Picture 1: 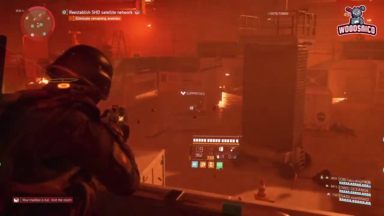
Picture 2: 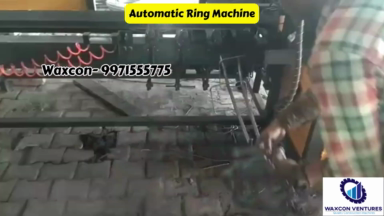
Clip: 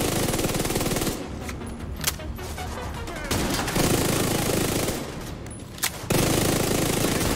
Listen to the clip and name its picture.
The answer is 1